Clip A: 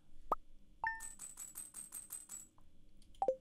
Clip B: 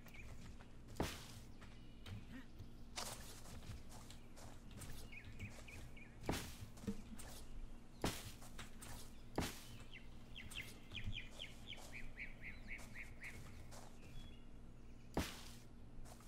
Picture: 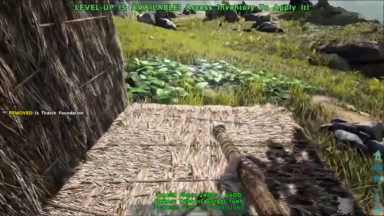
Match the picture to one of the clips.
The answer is B